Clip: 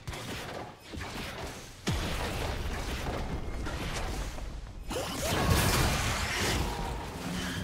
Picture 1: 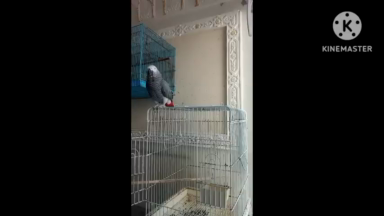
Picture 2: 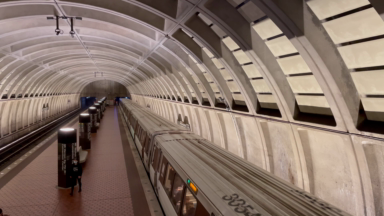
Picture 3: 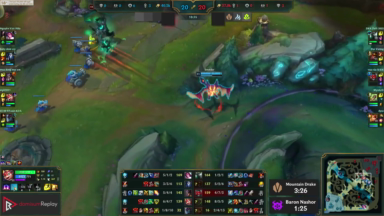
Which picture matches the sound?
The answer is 3